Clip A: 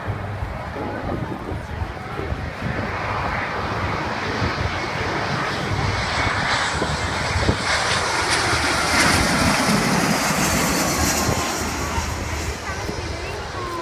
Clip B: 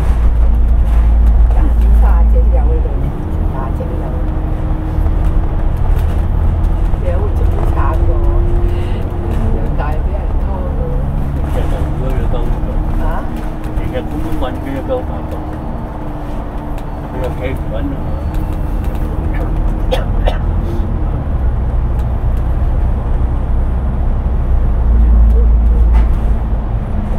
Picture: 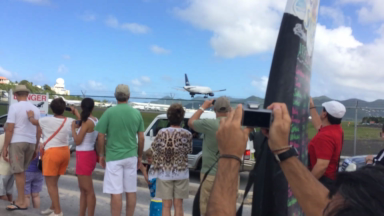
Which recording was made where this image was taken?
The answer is A